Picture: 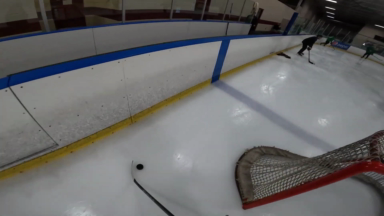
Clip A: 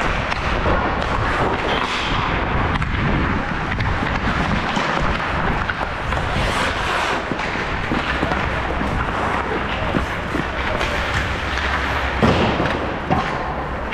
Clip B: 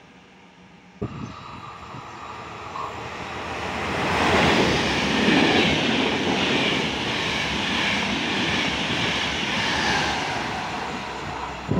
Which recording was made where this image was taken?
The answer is A